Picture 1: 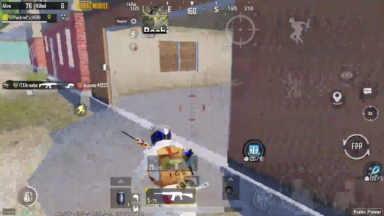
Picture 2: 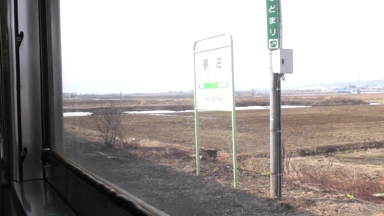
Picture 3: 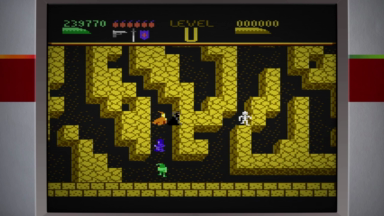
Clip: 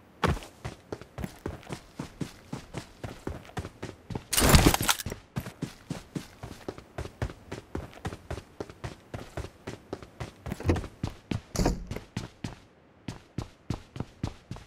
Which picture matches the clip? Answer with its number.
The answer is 1